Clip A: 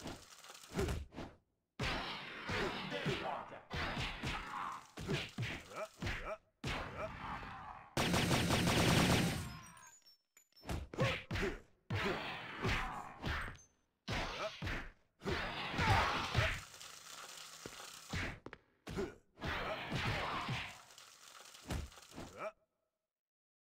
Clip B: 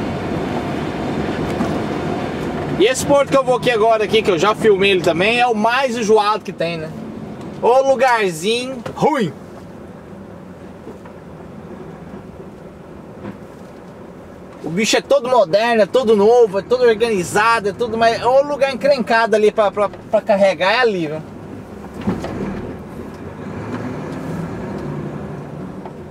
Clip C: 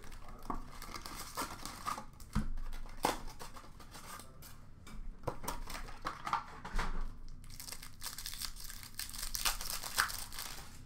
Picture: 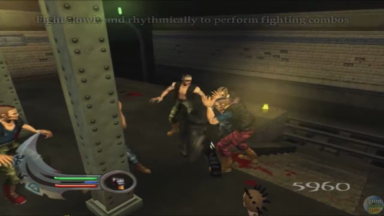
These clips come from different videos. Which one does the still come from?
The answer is A